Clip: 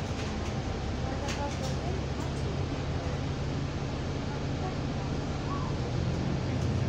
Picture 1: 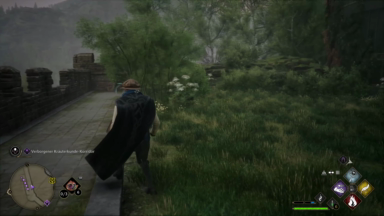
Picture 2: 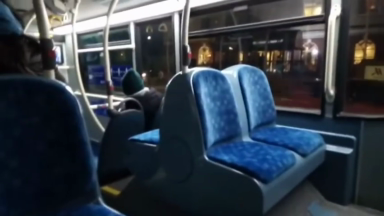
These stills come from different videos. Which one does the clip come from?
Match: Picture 2